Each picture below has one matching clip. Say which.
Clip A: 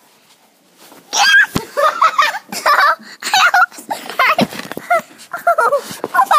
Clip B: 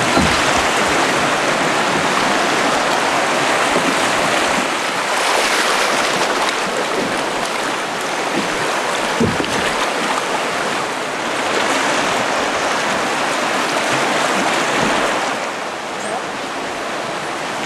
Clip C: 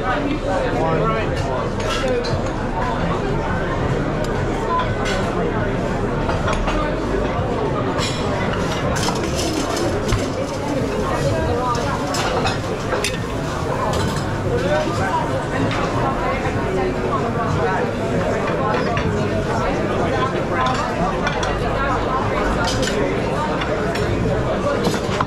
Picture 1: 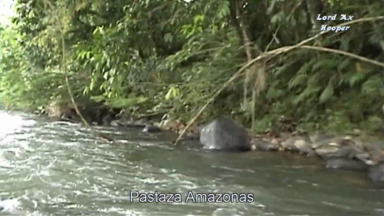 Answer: B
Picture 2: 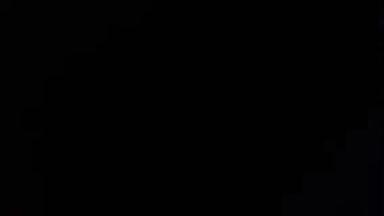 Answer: A